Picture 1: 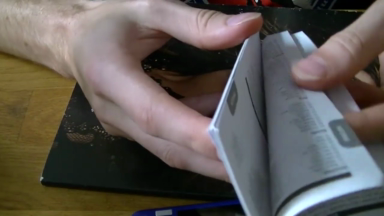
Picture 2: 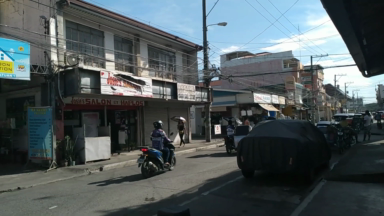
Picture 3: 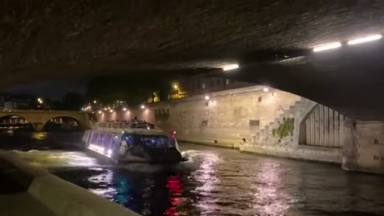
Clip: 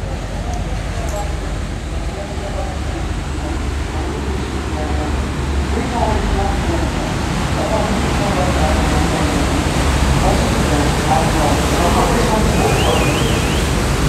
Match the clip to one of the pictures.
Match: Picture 3